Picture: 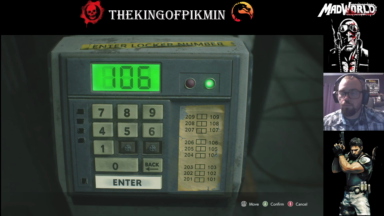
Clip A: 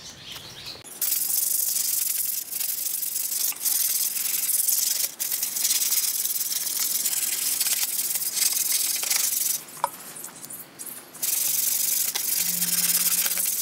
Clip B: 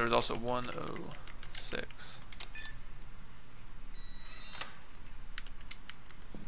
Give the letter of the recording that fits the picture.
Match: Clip B